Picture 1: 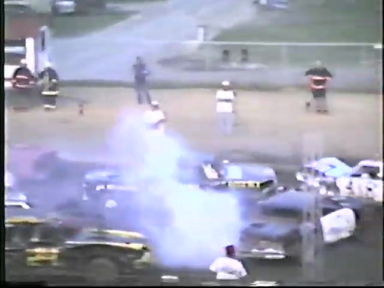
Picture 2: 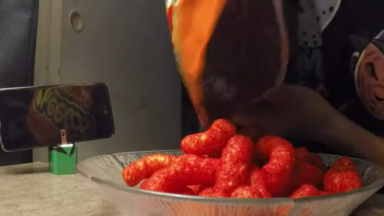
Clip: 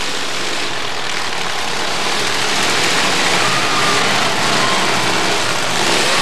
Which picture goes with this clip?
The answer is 1